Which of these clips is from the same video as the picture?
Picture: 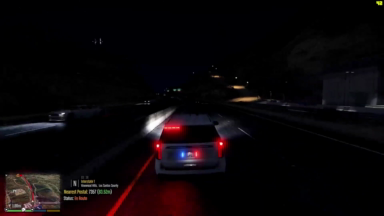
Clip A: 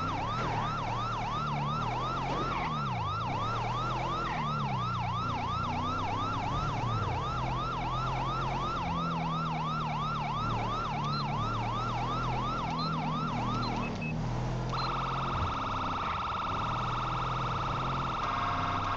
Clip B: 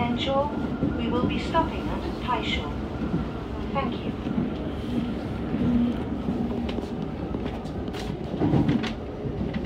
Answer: A